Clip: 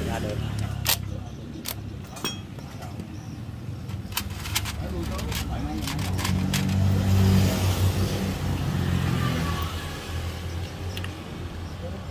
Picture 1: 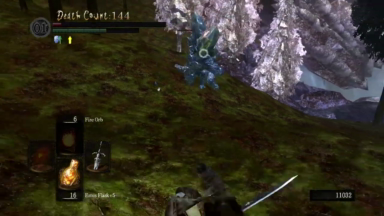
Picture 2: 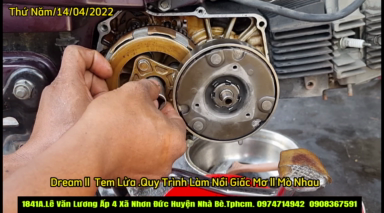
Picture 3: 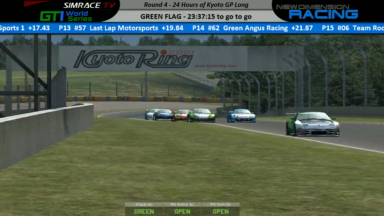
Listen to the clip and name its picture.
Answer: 2